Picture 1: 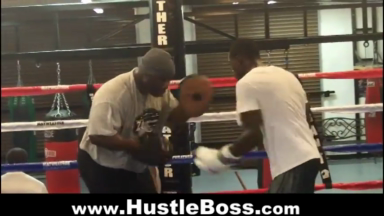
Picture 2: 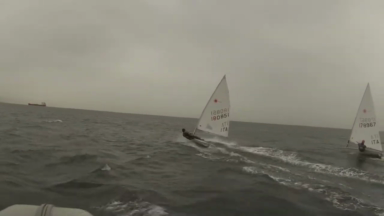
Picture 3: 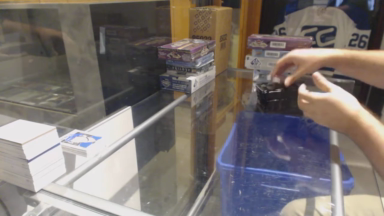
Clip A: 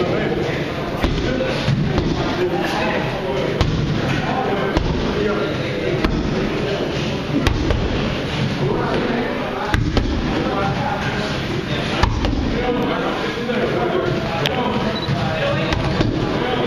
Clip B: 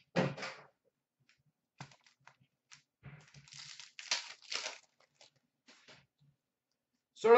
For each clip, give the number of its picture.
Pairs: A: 1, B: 3